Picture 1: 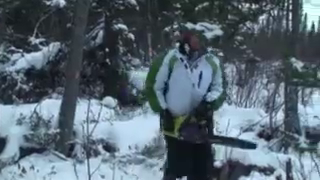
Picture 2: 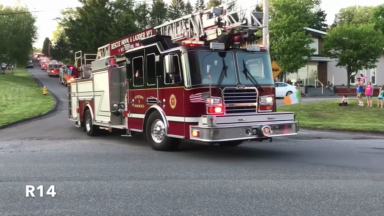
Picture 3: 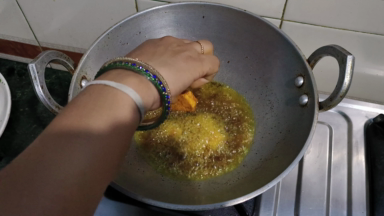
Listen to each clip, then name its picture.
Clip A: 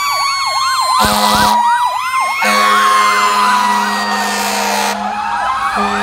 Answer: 2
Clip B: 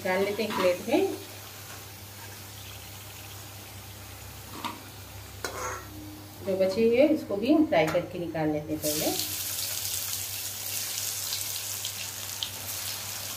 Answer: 3